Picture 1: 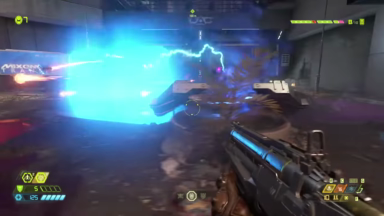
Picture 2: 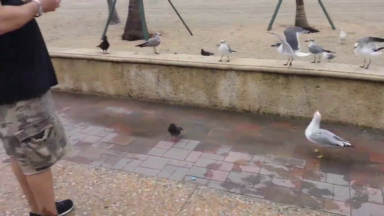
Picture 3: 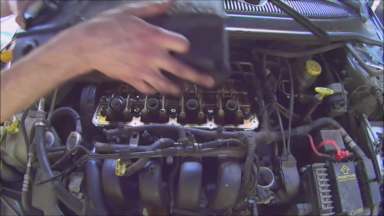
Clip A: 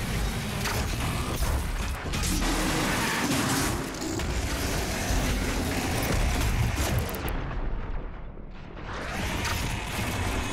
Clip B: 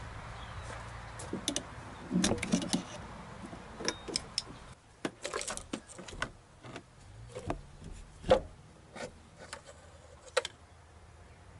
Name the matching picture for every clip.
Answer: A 1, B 3